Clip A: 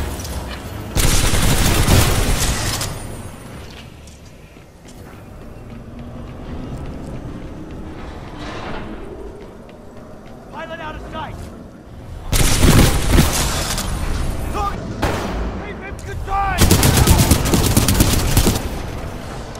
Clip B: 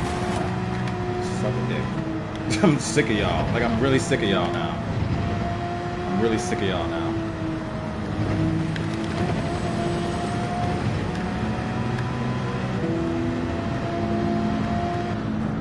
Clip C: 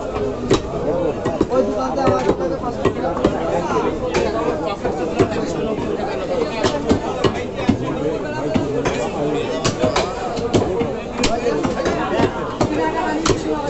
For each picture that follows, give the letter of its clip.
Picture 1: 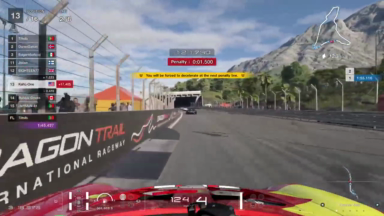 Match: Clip B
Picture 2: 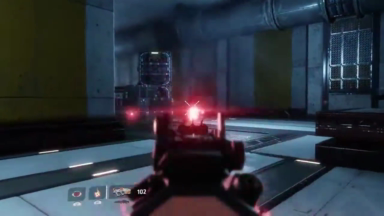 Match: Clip A